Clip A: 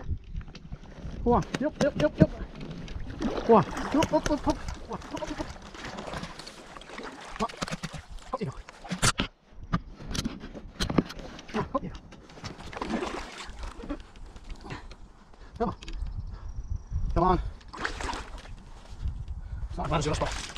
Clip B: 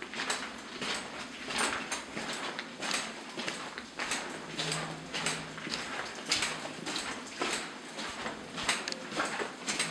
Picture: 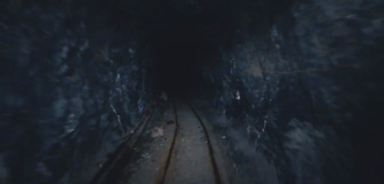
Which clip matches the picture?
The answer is B